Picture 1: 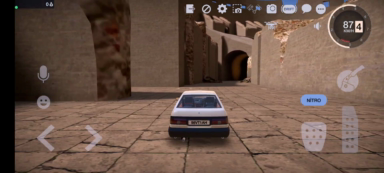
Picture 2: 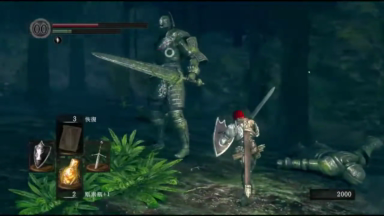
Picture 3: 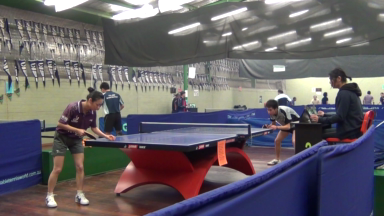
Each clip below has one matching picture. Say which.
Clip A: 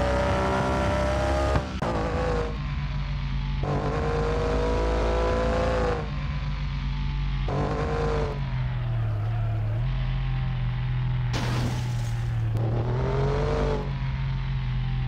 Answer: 1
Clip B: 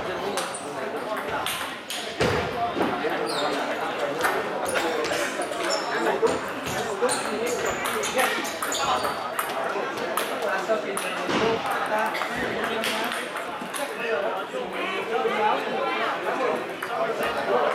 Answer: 3